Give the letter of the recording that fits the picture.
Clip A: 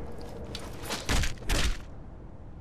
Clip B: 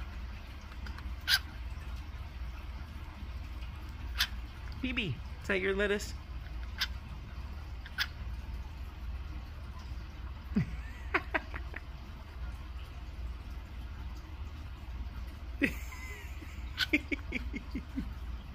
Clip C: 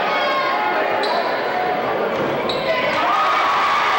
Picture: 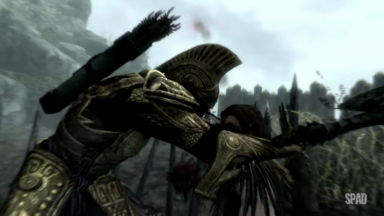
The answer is A